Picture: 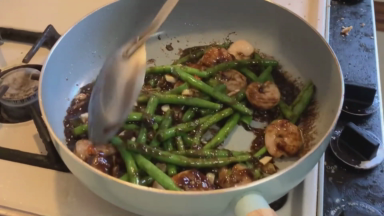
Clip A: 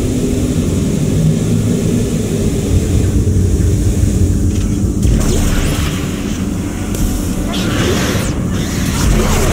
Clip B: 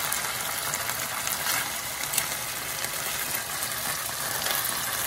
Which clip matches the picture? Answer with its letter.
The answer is B